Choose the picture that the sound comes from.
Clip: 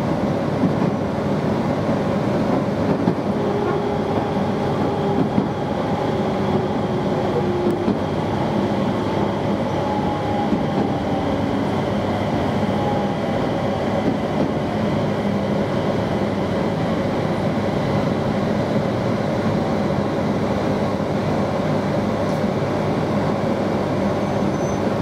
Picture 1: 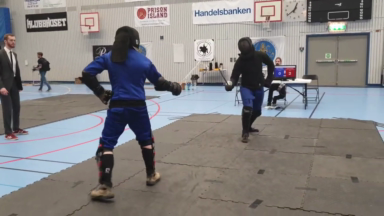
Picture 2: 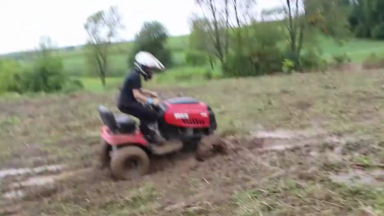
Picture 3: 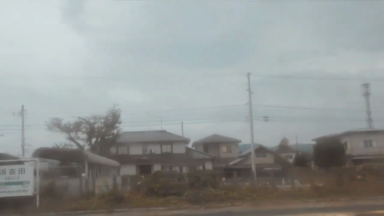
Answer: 3